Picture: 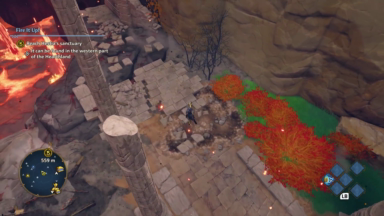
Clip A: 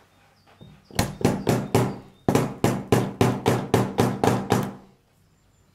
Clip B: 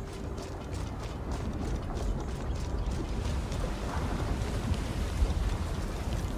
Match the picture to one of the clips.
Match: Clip B